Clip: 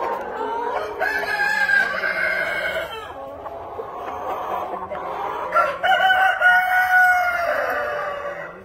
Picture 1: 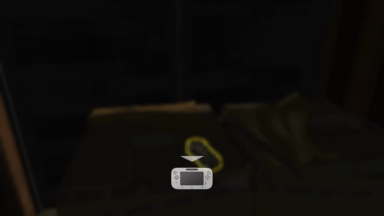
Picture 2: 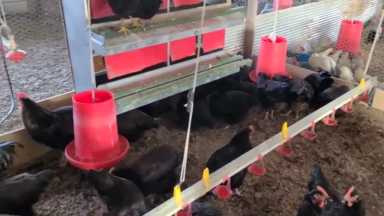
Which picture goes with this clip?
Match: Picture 2